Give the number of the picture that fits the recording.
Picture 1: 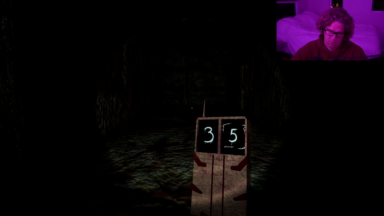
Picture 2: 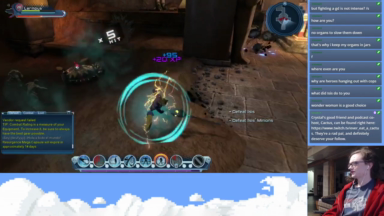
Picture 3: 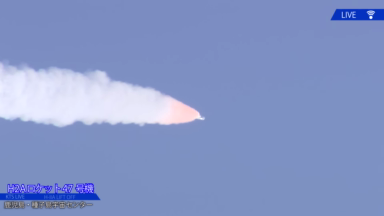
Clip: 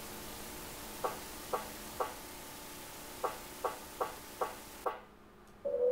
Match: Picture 1